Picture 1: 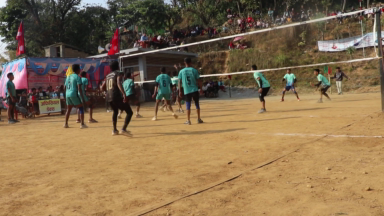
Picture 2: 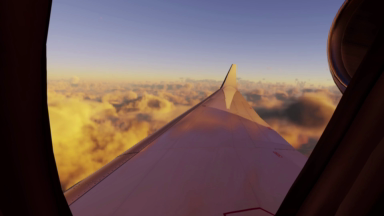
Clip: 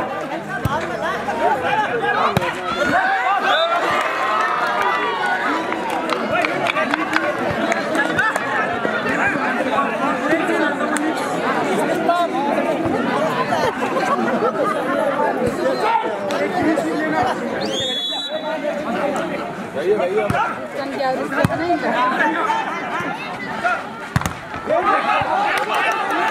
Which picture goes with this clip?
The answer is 1